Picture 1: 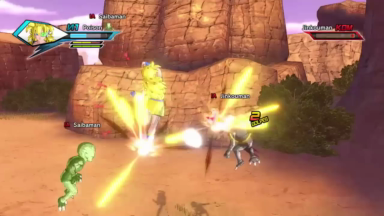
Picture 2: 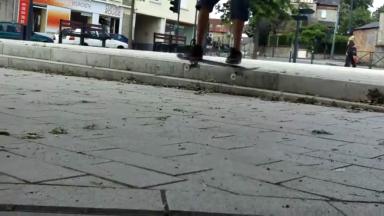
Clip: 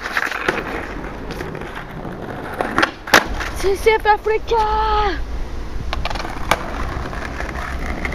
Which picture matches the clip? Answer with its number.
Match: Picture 2